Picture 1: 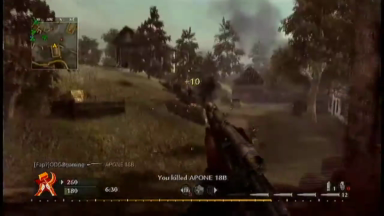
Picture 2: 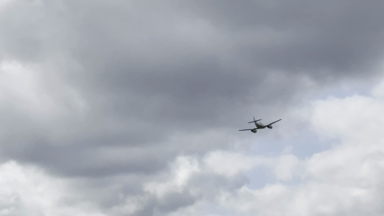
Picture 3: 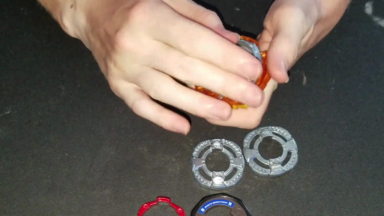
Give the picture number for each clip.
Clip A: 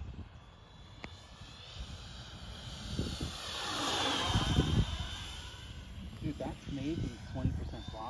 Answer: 2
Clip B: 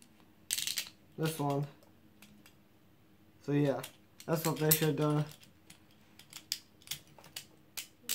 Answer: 3